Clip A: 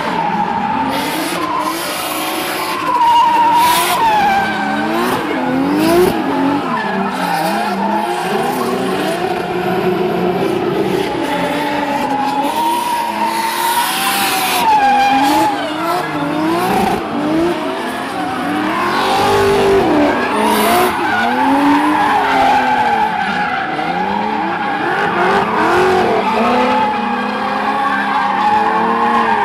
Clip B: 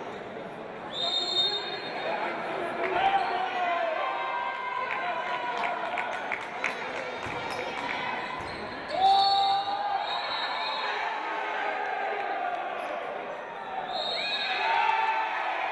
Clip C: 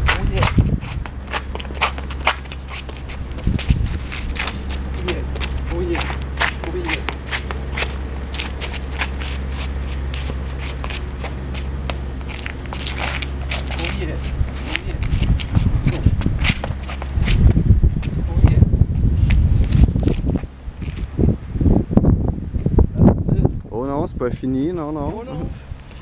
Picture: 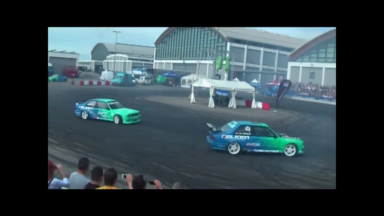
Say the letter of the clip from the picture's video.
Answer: A